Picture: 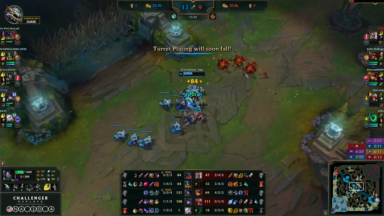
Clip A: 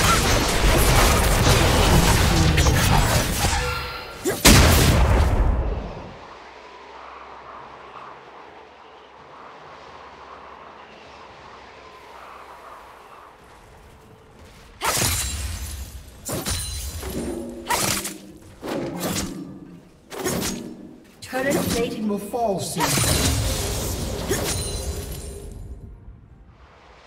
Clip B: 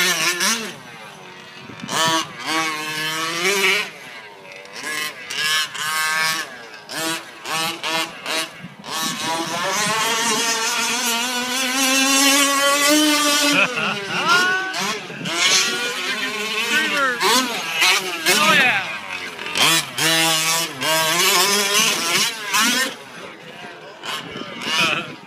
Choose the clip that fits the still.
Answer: A